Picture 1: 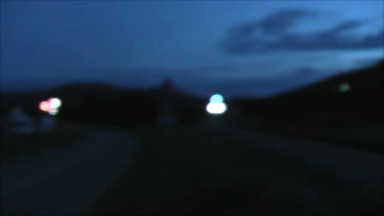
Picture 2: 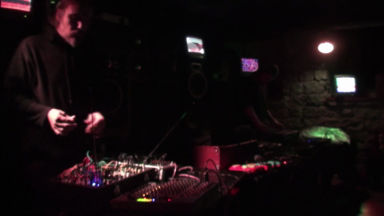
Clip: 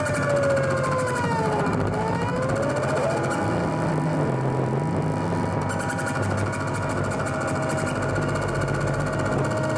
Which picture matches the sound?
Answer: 2